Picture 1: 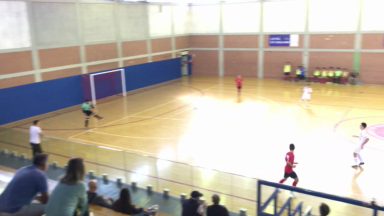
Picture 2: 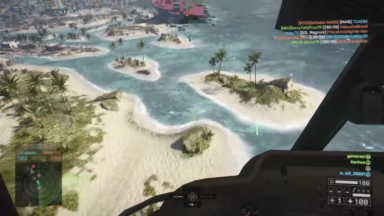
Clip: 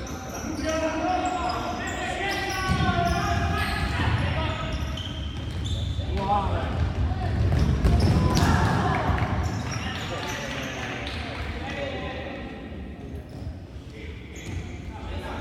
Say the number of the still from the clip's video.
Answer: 1